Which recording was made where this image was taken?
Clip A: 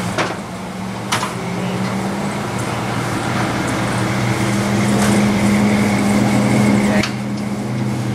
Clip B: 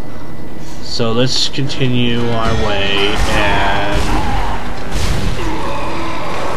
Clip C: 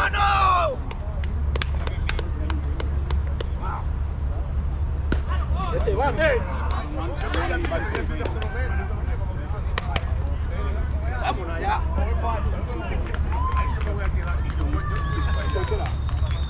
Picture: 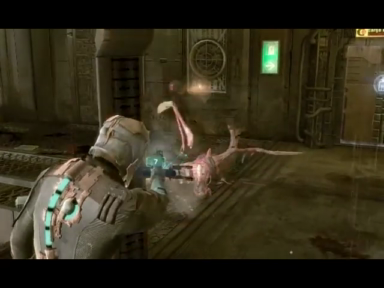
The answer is B